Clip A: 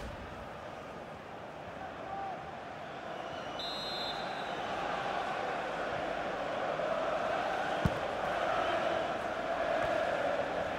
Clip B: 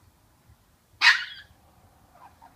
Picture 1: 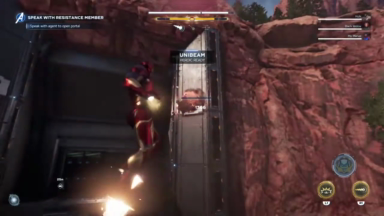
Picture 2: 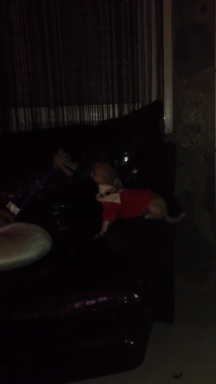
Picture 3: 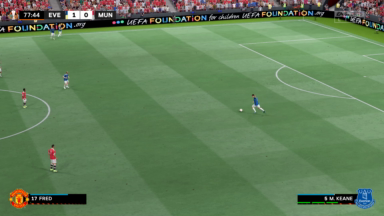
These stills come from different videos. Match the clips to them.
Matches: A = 3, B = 2